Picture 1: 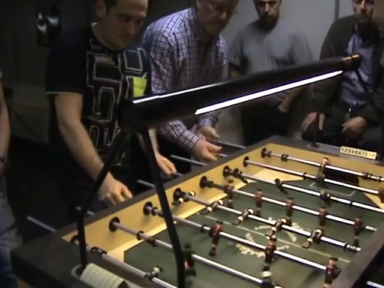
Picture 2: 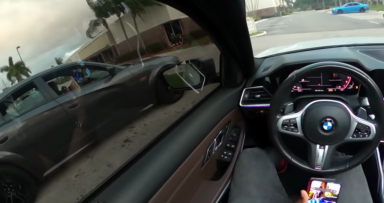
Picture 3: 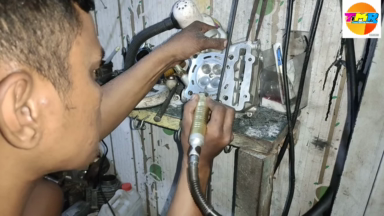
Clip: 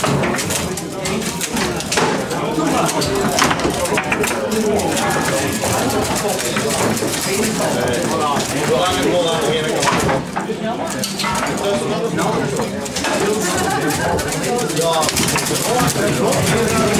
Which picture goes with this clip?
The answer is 1